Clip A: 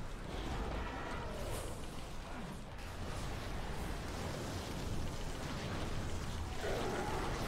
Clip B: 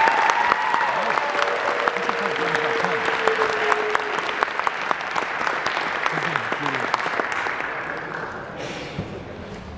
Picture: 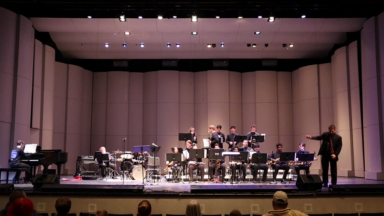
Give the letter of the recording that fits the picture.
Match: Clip B